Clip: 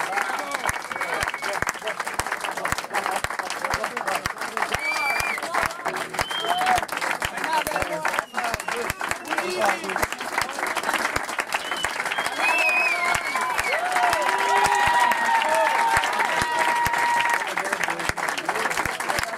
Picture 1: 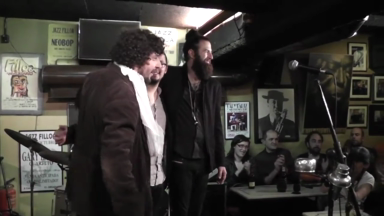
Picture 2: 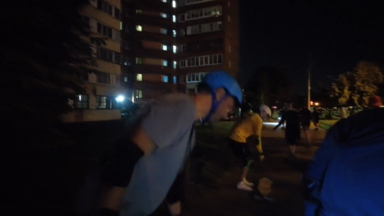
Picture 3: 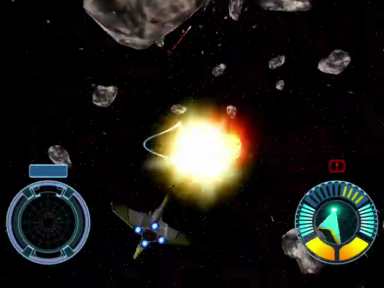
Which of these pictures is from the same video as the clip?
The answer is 1